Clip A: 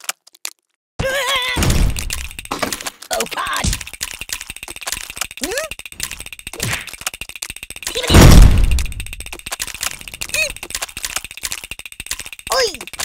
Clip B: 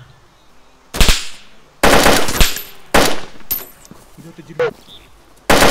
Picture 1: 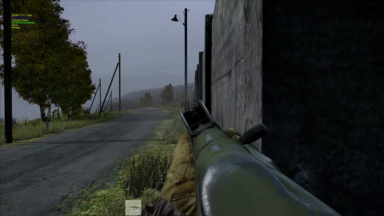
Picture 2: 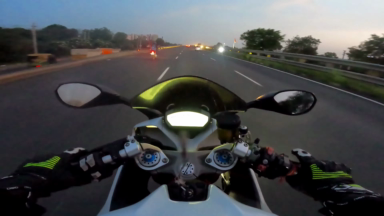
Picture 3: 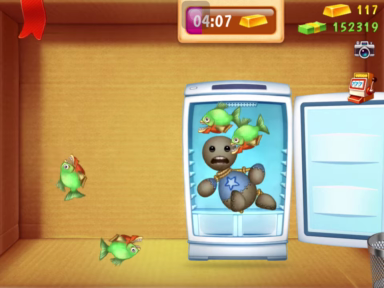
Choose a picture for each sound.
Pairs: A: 3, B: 1